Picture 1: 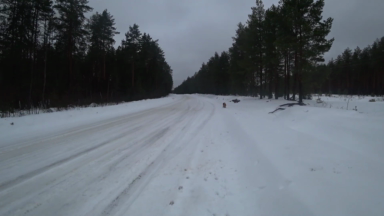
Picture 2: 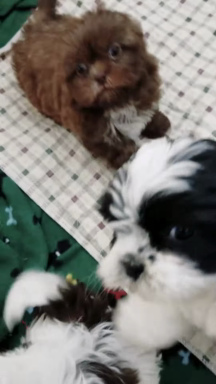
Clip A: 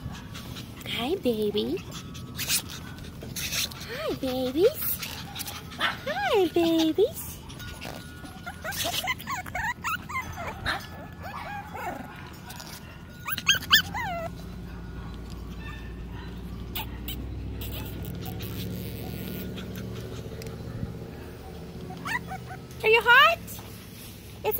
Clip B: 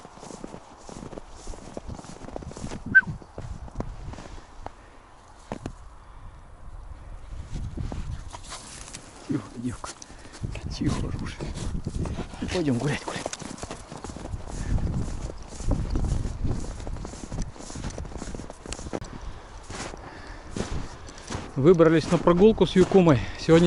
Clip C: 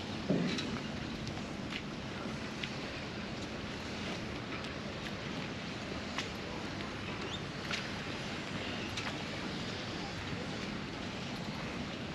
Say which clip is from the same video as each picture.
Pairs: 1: B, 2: A